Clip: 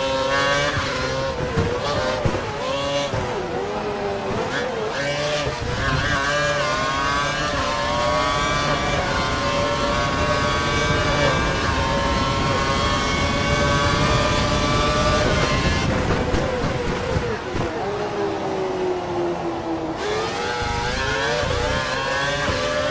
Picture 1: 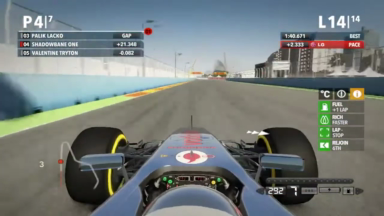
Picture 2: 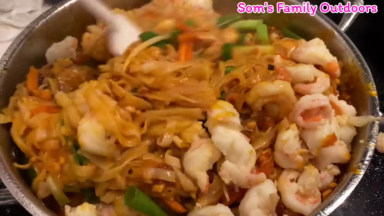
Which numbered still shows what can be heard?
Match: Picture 1